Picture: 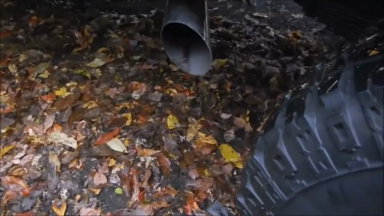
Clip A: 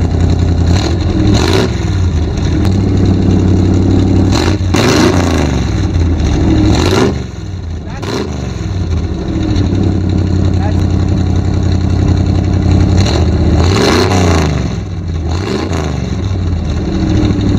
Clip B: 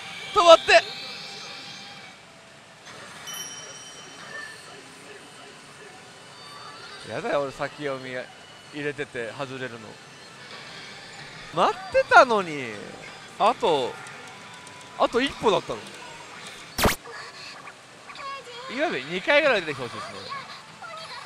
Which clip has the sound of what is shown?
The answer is A